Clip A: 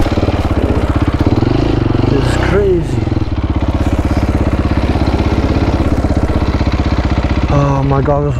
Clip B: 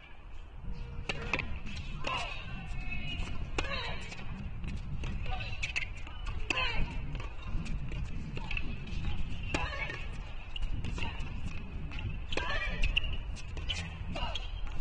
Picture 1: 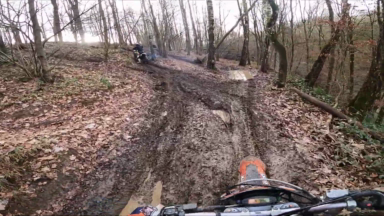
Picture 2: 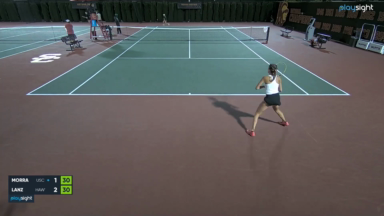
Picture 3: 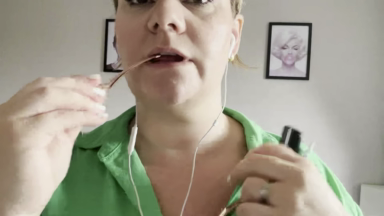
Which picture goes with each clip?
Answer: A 1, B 2